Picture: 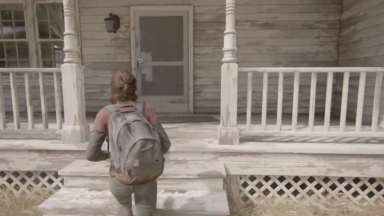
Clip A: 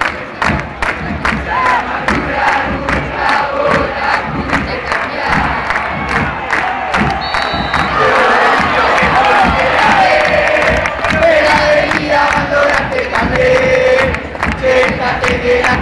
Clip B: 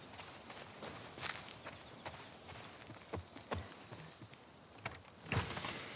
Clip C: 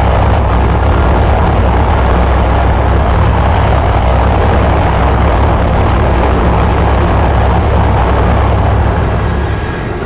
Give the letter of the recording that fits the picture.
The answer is B